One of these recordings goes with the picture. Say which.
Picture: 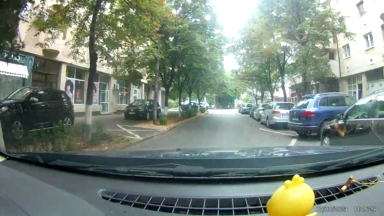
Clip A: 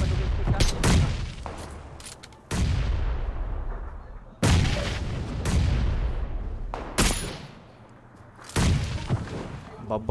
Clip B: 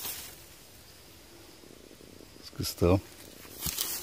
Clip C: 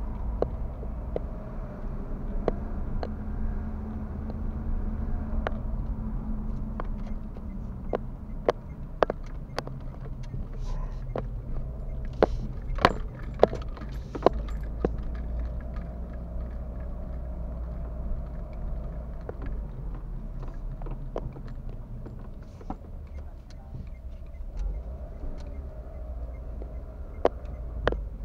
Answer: C